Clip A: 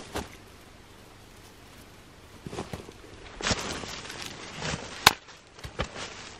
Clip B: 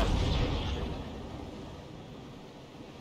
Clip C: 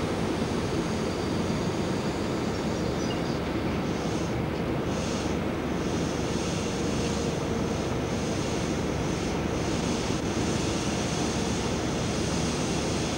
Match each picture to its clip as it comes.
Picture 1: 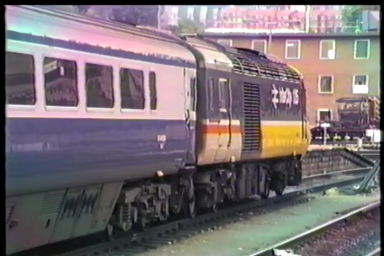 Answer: C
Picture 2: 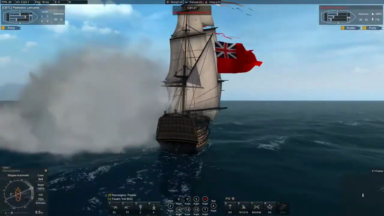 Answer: B